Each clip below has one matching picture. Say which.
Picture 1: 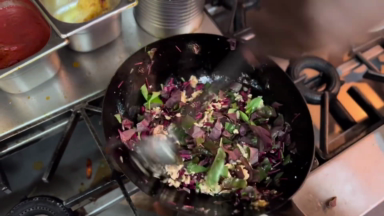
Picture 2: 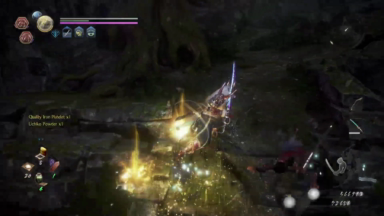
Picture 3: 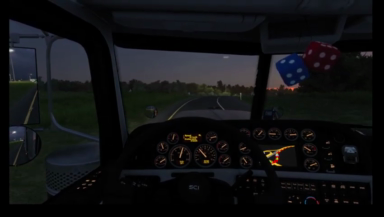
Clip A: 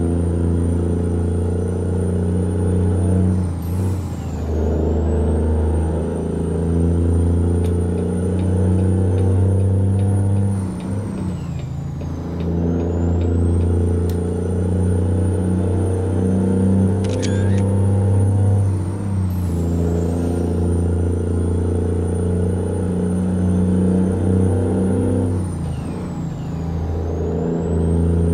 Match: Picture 3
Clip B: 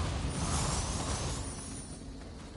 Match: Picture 2